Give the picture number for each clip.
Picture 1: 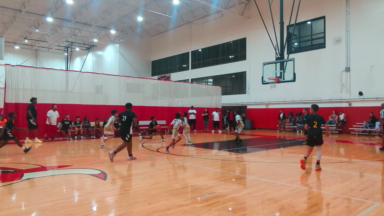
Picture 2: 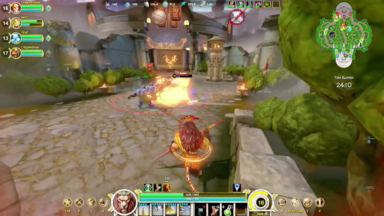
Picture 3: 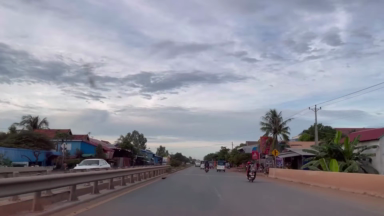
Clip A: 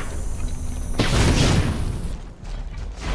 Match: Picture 2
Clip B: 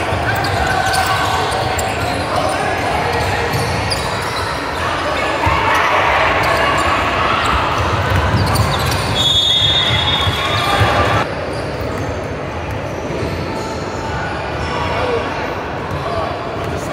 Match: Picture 1